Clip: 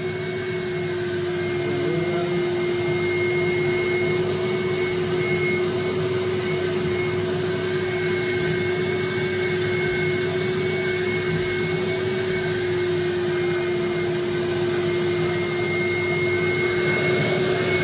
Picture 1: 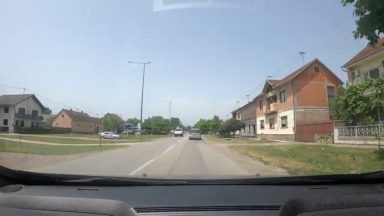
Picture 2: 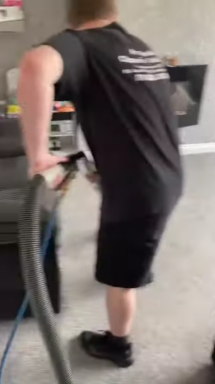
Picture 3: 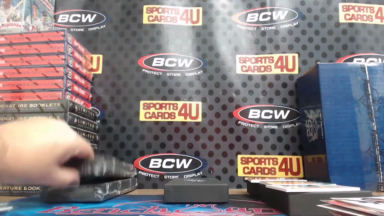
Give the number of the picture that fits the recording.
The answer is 2